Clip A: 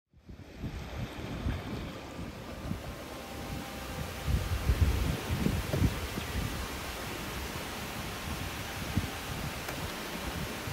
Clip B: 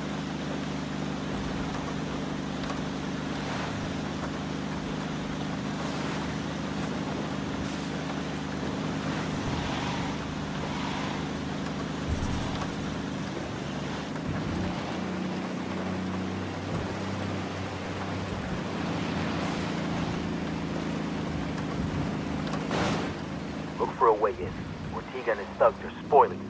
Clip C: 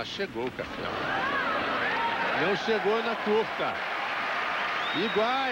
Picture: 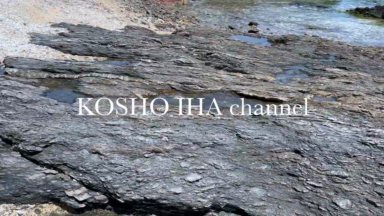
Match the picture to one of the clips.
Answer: A